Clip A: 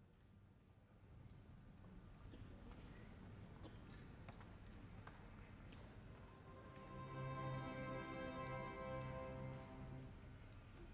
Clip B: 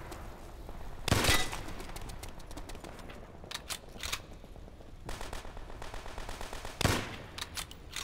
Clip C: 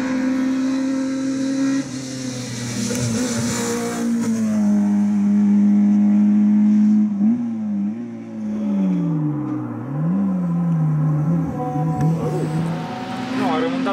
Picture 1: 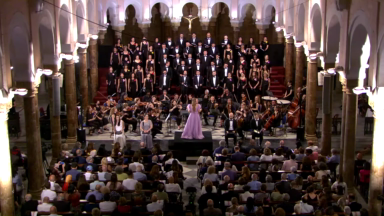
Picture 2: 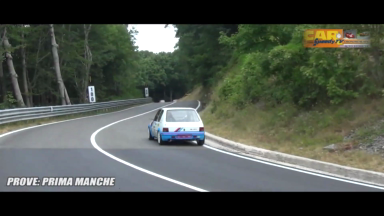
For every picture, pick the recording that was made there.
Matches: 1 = A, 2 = C